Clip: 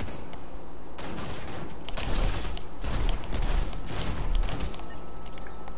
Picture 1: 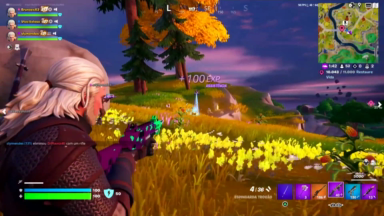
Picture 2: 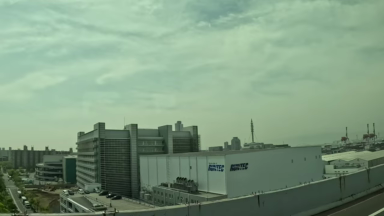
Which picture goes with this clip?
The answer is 1